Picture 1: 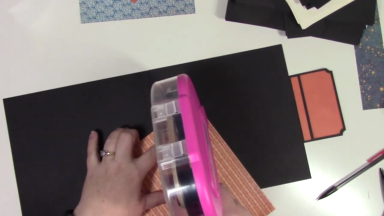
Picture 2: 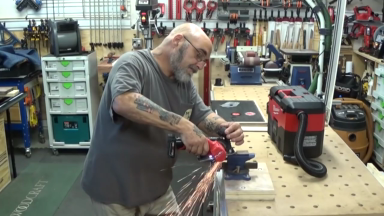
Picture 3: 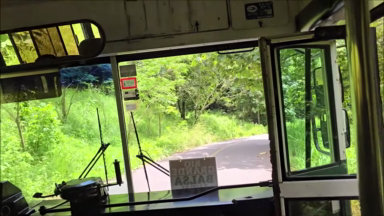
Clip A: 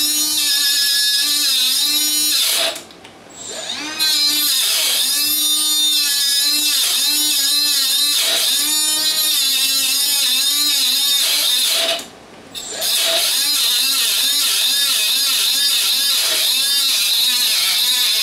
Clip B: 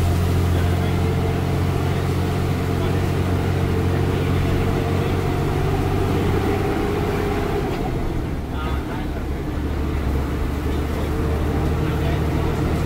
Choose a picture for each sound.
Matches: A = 2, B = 3